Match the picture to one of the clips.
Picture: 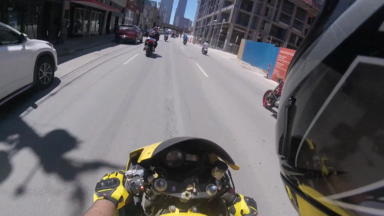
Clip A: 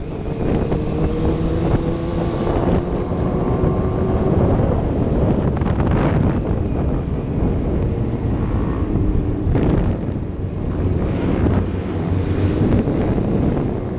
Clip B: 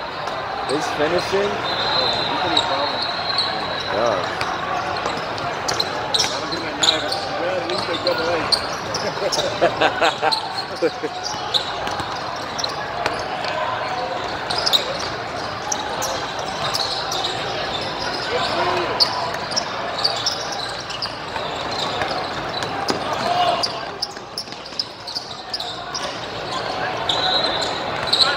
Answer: A